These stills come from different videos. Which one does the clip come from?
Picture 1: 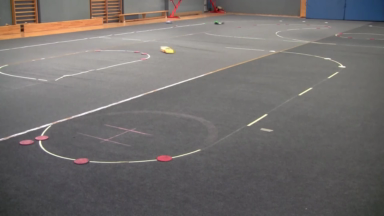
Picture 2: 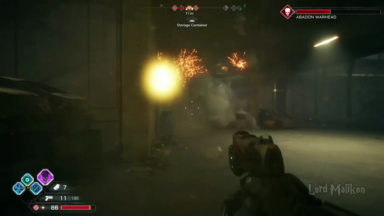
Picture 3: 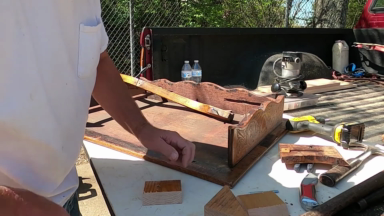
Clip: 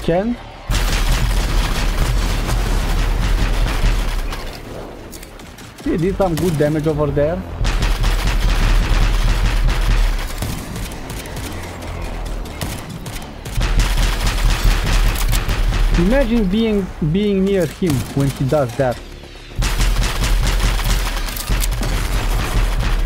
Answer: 2